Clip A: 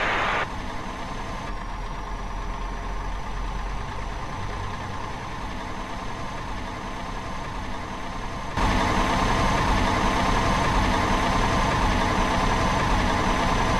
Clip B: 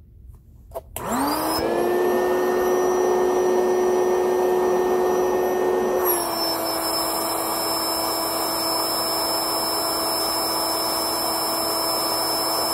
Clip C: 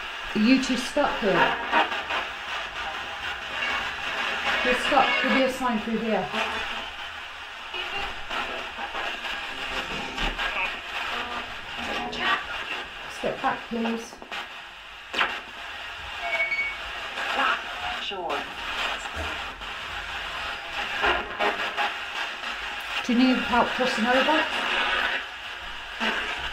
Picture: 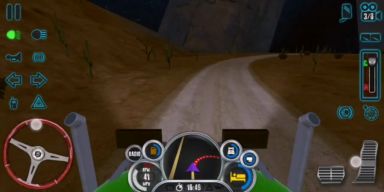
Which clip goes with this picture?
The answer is A